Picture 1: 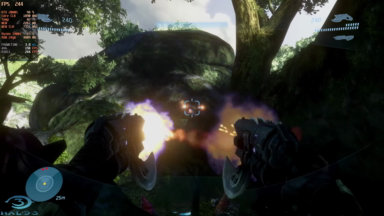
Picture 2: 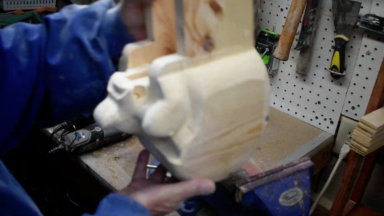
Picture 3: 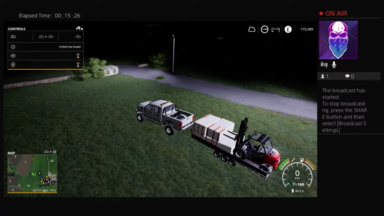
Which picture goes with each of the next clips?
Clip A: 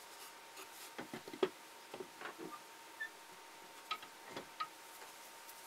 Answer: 2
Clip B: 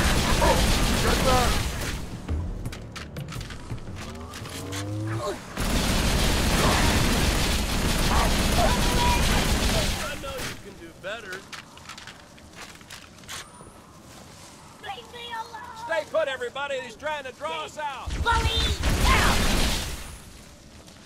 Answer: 1